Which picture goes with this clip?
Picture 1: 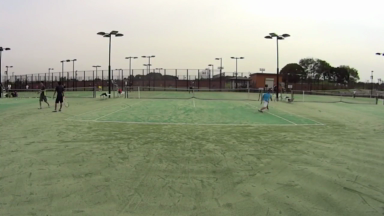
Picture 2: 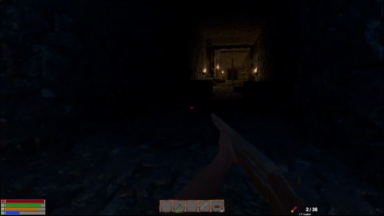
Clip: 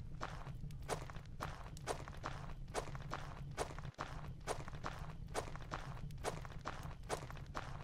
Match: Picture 2